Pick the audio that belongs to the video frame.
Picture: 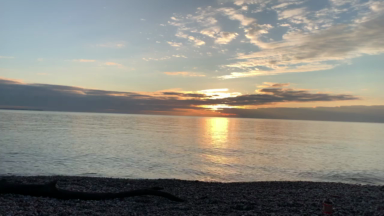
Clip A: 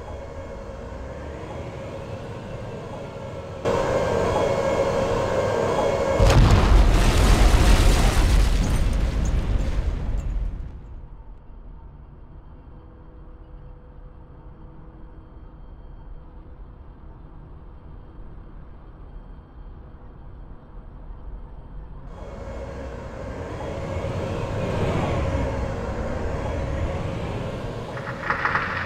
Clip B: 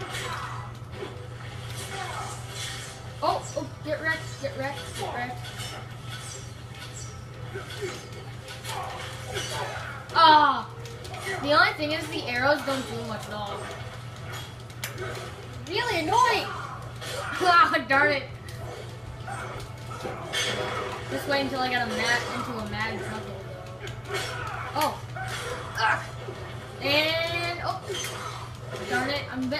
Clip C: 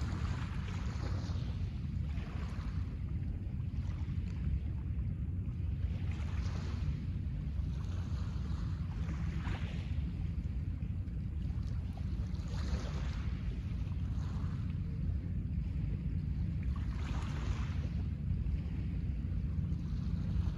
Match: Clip C